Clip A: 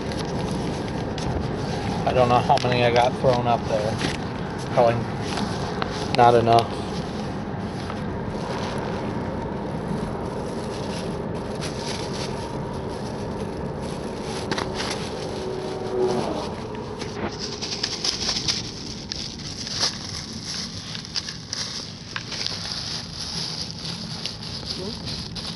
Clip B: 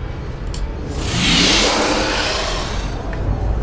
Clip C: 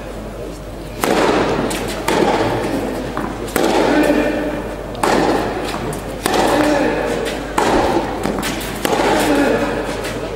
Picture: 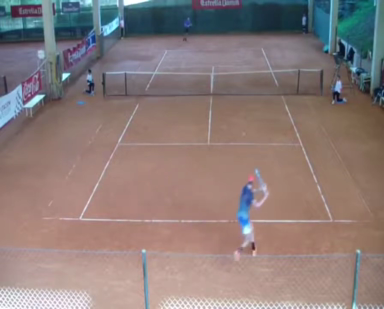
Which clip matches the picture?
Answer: C